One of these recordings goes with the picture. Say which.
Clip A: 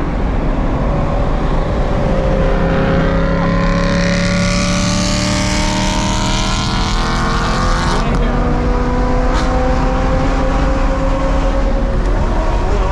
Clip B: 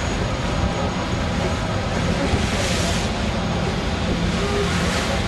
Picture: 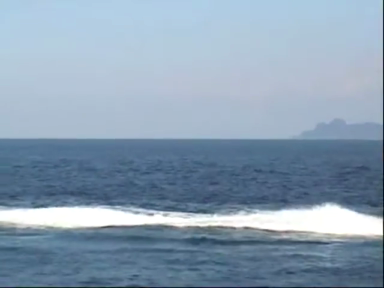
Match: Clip B